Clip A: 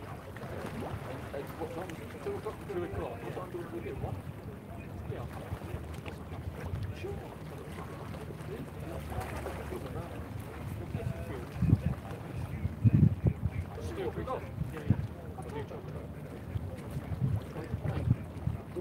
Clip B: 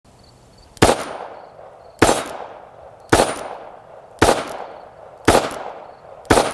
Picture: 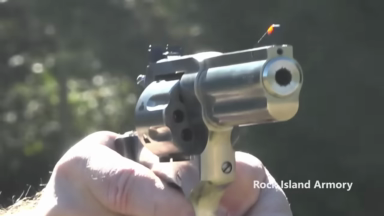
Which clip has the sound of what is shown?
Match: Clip B